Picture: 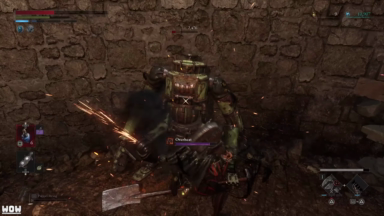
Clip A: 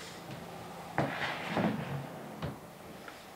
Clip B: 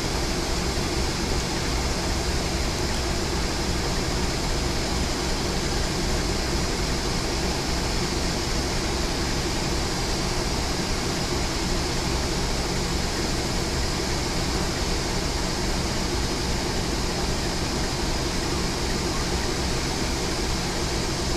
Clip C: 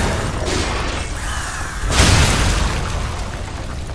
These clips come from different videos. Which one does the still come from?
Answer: C